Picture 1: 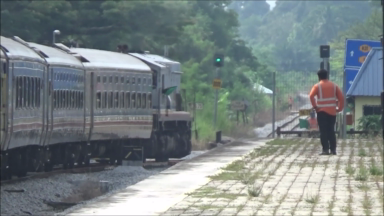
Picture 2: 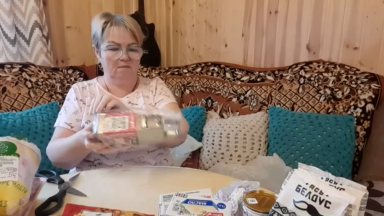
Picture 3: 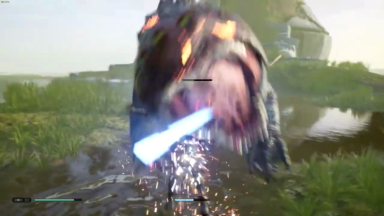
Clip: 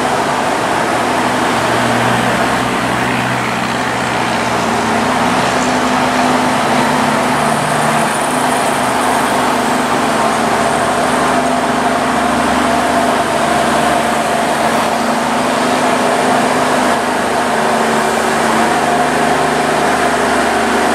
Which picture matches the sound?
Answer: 1